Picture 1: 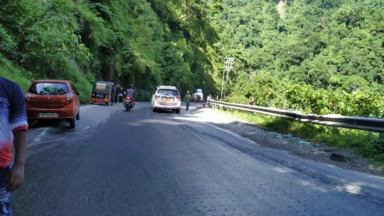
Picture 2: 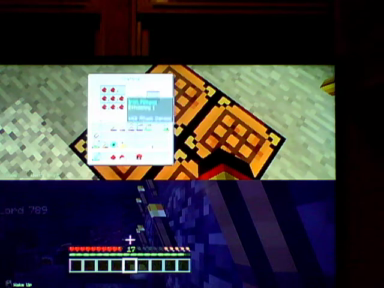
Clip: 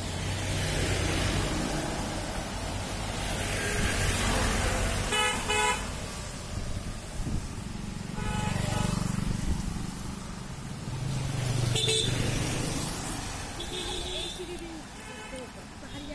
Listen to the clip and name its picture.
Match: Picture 1